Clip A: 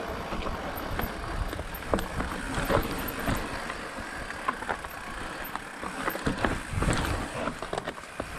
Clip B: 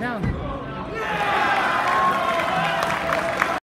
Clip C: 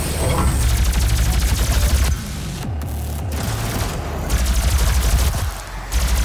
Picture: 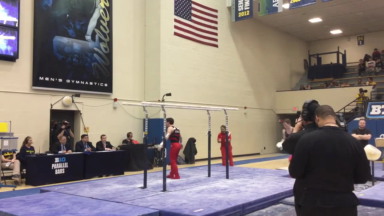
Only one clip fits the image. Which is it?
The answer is B